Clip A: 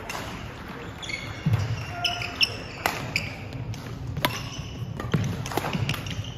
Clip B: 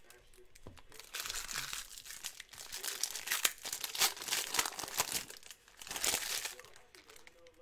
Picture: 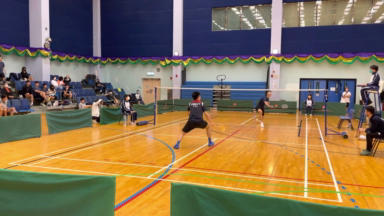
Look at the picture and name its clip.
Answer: A